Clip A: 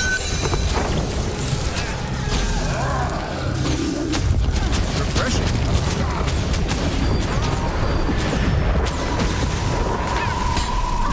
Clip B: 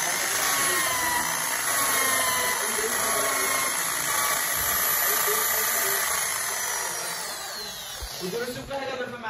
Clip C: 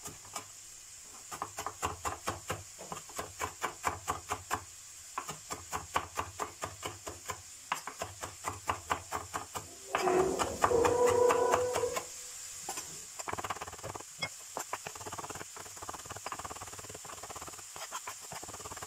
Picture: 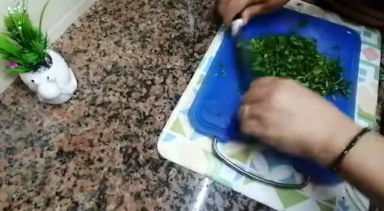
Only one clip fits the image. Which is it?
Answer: C